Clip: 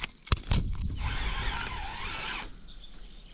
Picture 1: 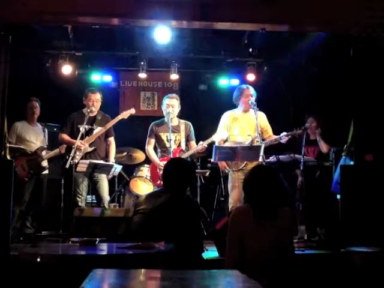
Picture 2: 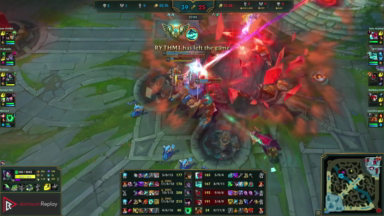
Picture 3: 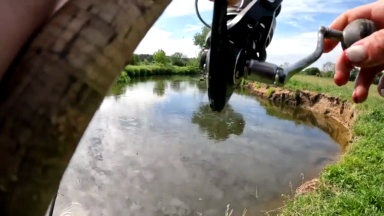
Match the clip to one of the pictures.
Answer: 3